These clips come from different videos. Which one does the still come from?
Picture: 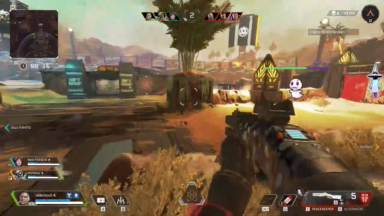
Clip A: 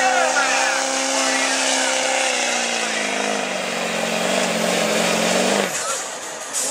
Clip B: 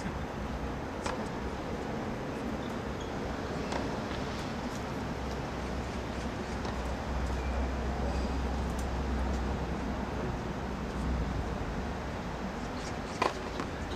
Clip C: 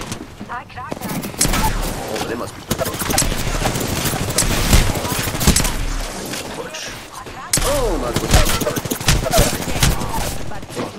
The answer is C